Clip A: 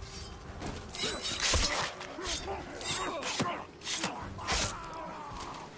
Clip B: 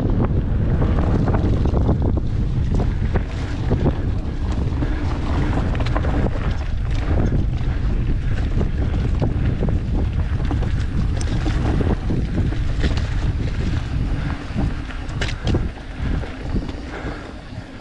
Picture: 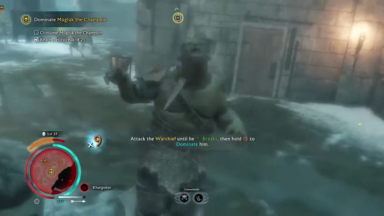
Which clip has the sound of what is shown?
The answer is A